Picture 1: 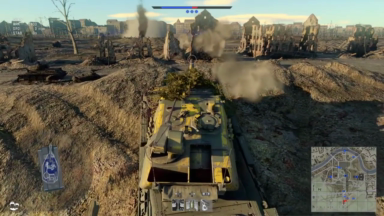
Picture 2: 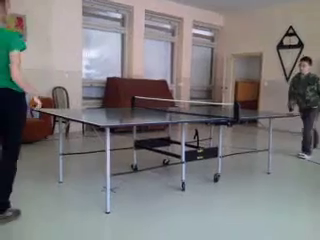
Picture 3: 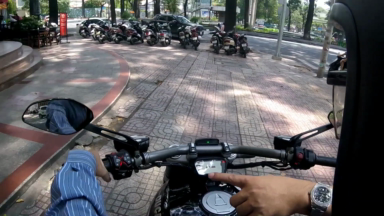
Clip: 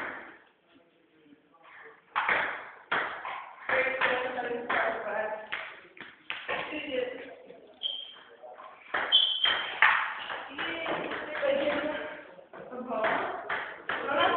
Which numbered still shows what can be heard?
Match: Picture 2